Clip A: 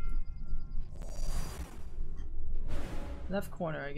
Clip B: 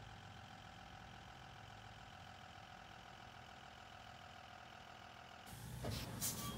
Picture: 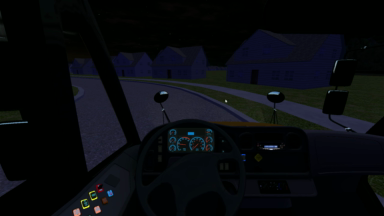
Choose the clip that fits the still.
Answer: B